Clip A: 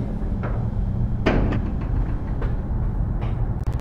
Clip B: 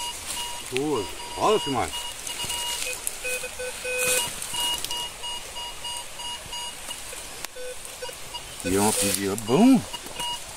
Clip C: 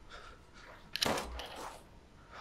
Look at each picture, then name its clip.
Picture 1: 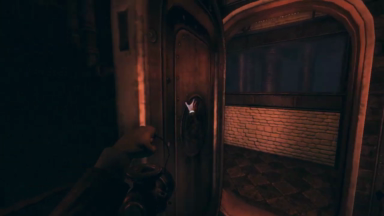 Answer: A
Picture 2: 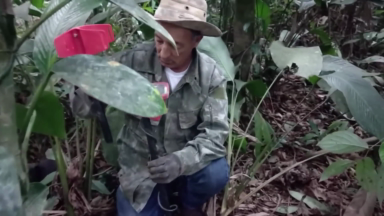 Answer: B